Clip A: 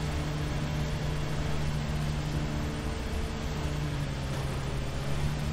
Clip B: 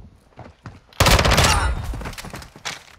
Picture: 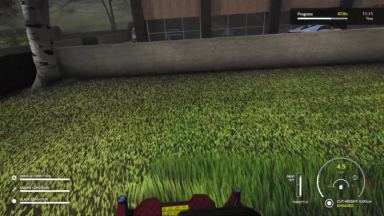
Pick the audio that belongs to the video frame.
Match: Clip A